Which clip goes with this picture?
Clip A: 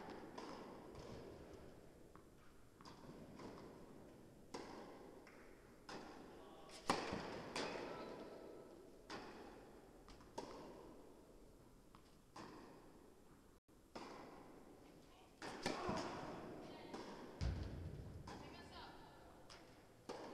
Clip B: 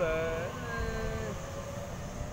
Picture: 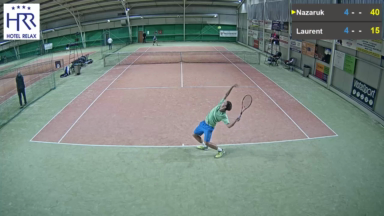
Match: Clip A